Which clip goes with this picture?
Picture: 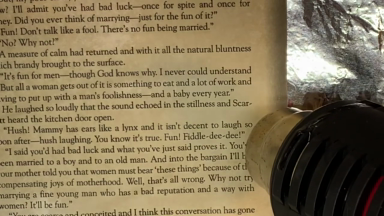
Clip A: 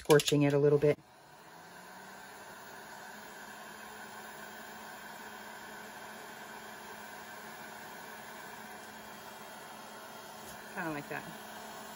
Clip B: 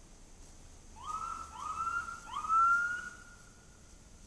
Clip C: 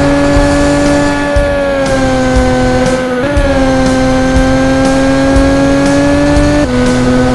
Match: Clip A